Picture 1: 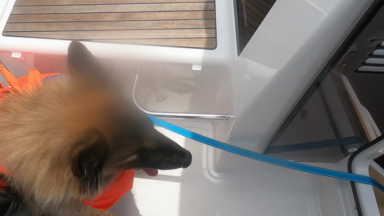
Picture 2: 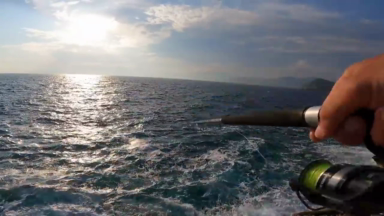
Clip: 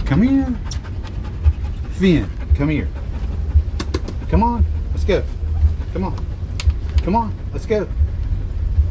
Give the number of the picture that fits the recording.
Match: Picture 1